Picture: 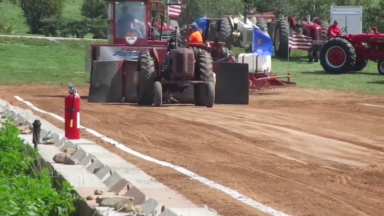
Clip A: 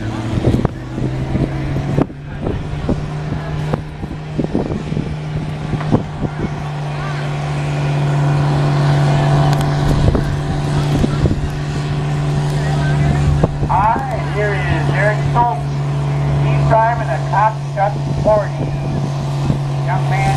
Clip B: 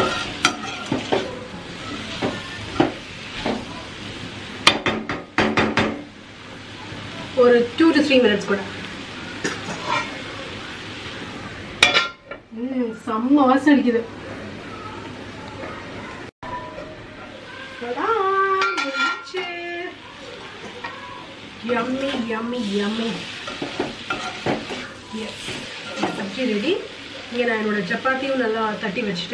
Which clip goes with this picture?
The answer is A